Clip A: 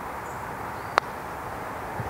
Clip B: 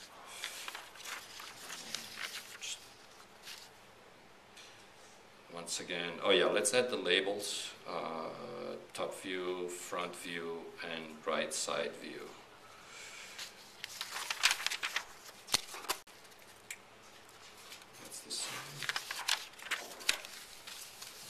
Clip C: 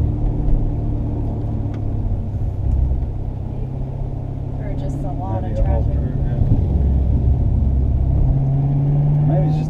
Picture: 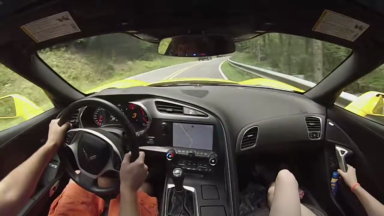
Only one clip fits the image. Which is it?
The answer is C